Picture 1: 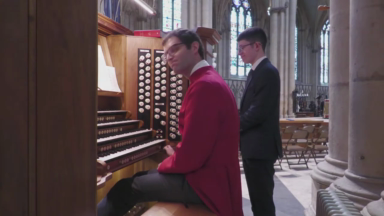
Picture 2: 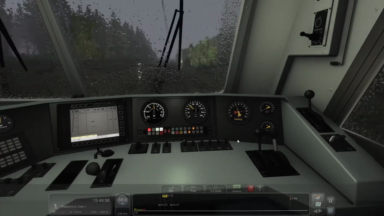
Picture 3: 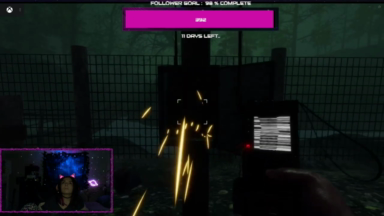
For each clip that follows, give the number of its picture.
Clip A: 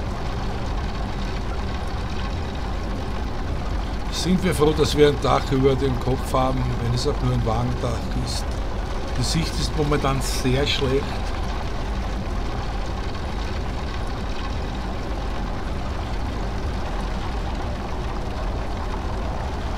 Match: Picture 2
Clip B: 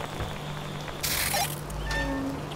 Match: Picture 3